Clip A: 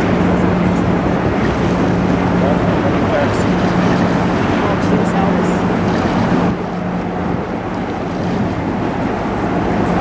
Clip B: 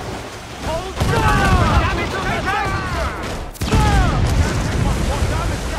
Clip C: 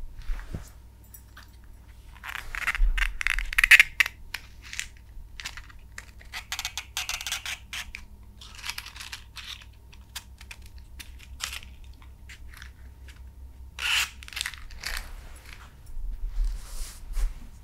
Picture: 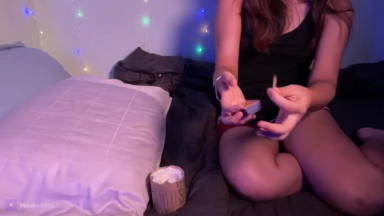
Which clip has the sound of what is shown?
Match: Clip C